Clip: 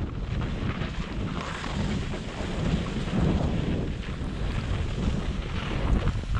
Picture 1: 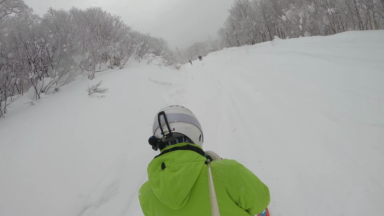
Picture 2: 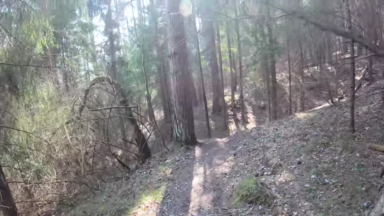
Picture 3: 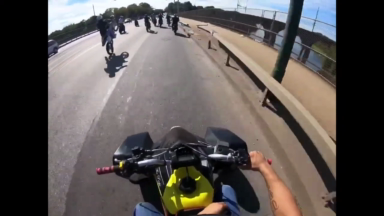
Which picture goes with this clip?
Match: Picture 1